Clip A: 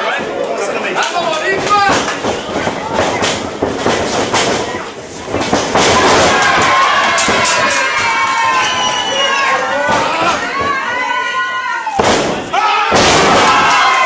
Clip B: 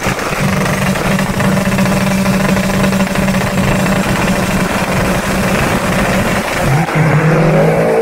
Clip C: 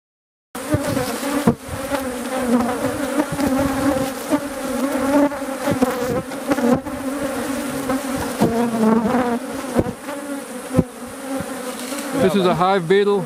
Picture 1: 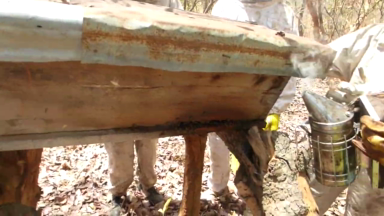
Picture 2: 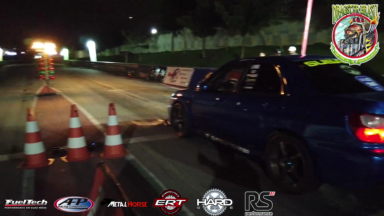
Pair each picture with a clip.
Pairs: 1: C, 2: B